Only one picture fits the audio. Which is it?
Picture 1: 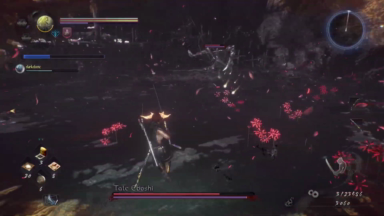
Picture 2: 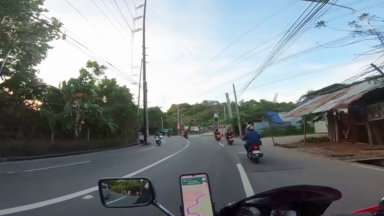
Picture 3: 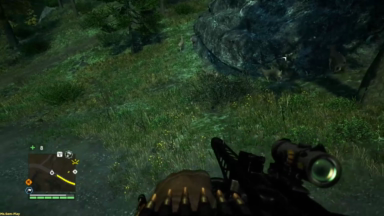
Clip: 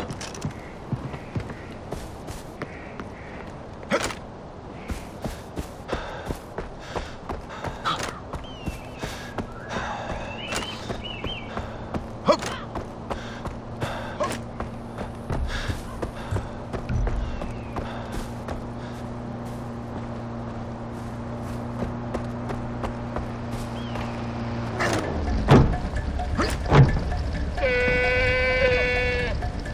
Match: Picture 3